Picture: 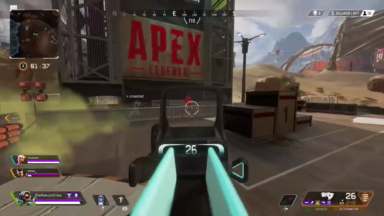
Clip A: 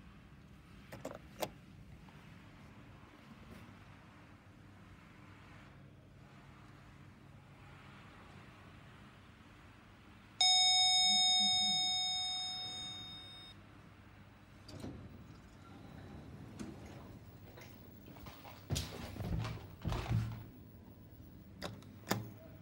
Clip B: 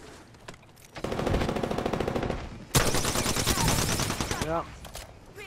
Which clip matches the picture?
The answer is B